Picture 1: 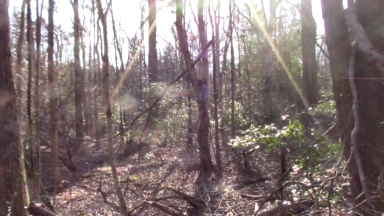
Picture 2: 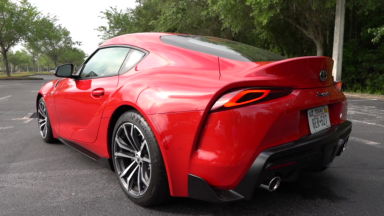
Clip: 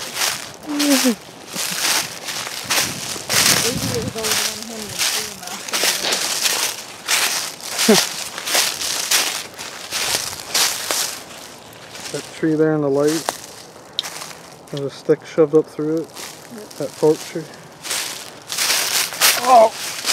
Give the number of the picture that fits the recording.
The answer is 1